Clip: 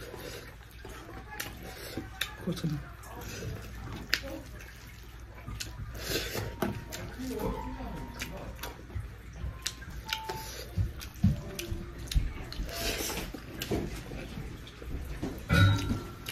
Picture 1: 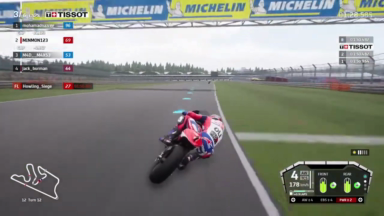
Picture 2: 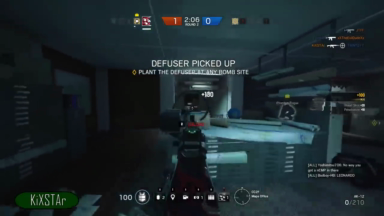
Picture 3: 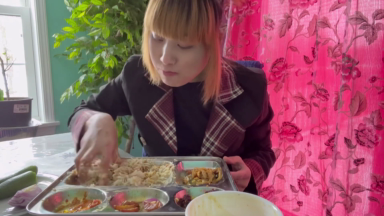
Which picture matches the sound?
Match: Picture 3